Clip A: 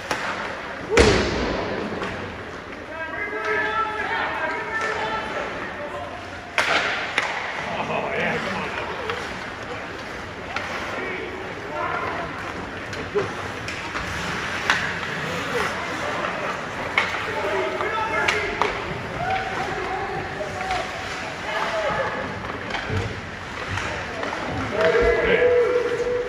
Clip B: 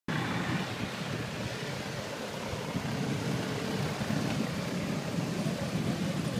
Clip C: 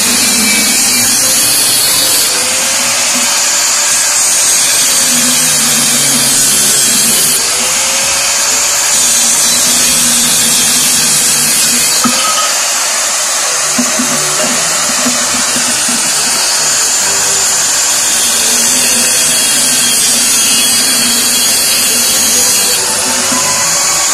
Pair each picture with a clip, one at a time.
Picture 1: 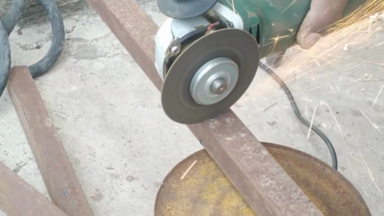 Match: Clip C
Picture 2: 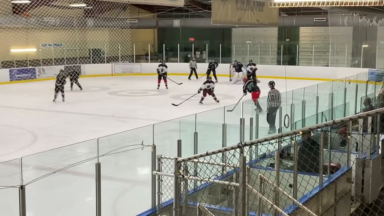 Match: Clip A